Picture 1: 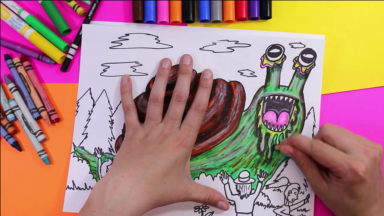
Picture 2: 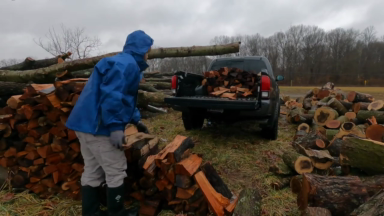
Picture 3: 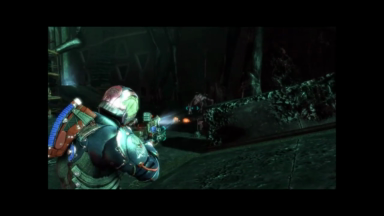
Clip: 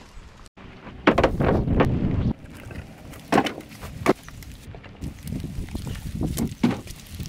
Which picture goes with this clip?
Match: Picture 2